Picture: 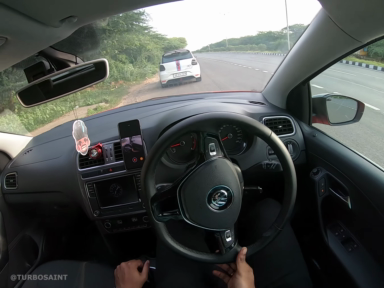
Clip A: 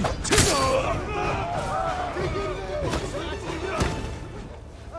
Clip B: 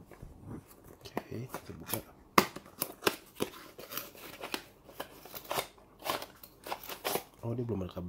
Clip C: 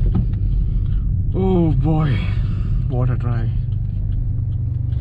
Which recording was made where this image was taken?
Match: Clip C